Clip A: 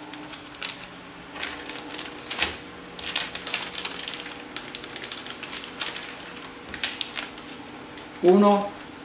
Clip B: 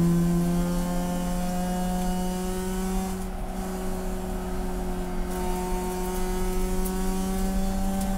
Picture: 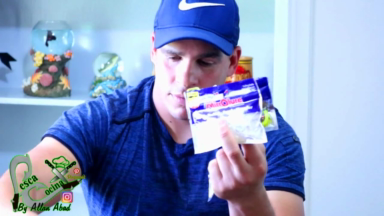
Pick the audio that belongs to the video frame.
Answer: A